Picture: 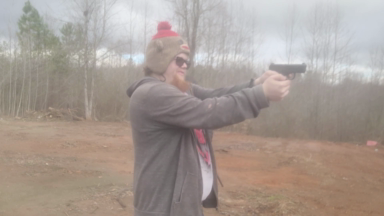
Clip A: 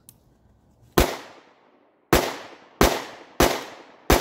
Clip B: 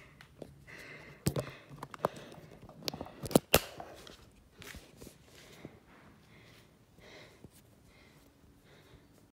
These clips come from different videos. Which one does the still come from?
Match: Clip A